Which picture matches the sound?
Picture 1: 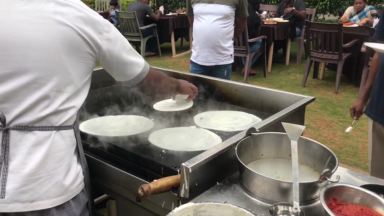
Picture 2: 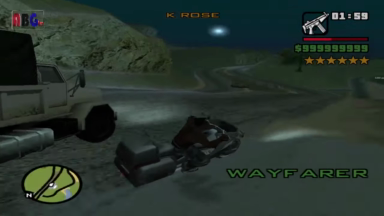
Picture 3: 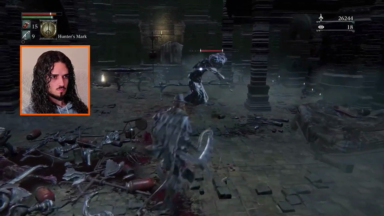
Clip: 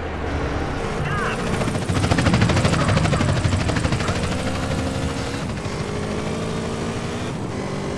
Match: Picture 2